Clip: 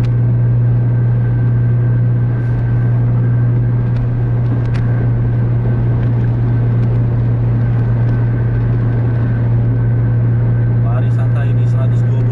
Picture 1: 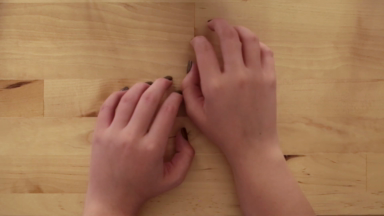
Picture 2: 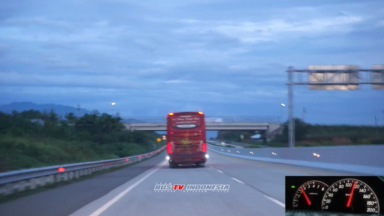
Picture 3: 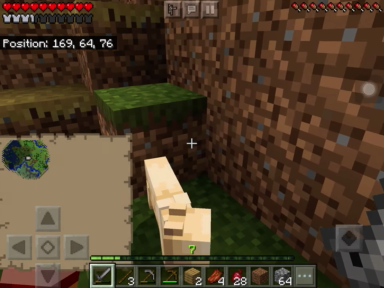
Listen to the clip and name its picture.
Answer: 2